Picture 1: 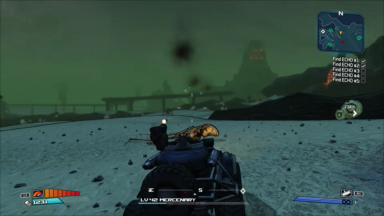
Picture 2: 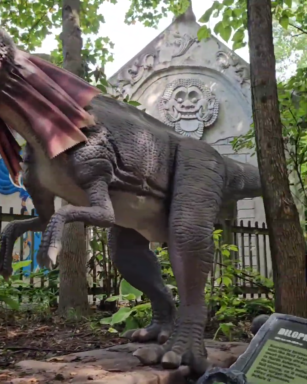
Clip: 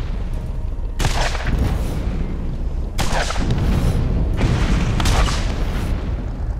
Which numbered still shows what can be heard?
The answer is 1